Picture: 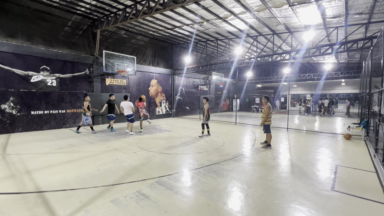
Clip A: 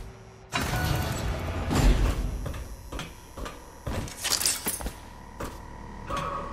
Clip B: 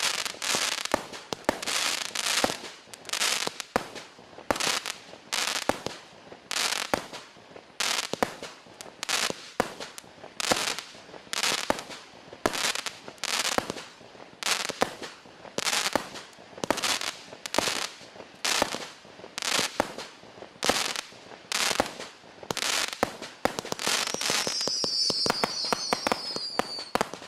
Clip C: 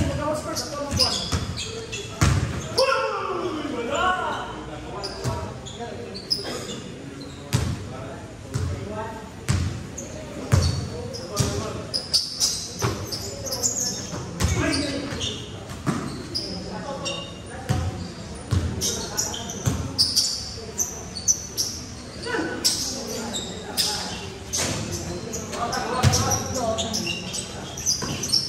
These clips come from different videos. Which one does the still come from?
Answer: C